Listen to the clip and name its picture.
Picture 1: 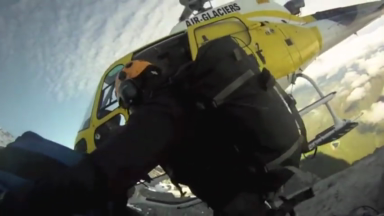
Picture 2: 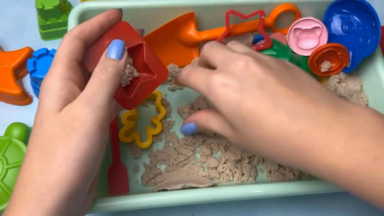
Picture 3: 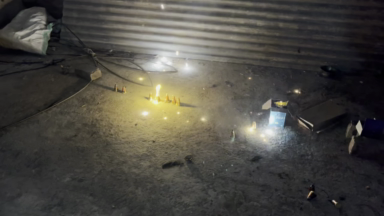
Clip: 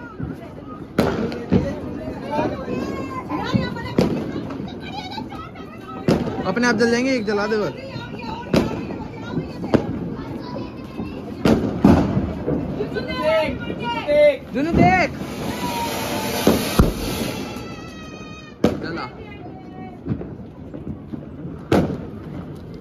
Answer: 3